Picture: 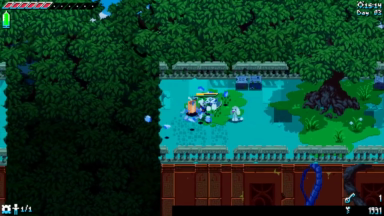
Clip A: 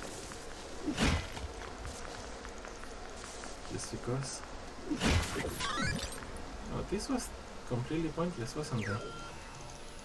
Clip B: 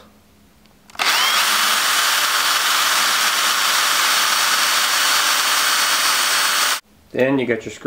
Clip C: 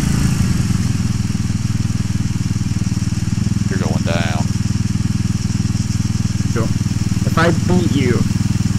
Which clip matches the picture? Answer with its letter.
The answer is A